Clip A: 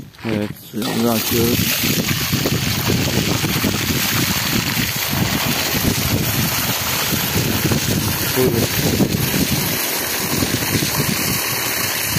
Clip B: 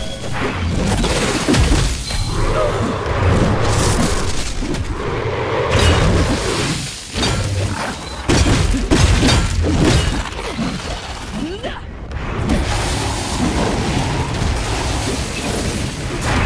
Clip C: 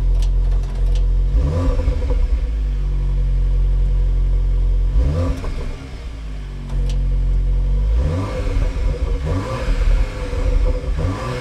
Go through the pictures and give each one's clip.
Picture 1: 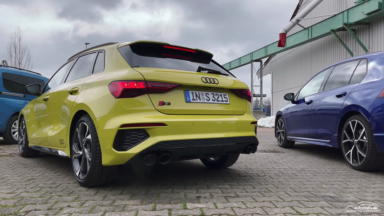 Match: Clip C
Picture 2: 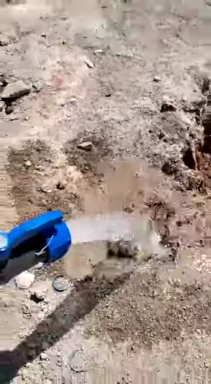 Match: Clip A